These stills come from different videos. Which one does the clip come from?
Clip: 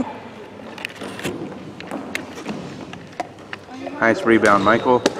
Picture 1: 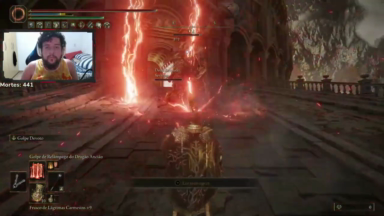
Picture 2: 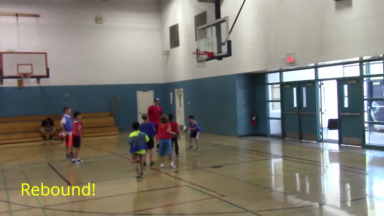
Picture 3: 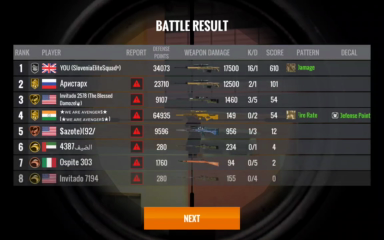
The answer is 2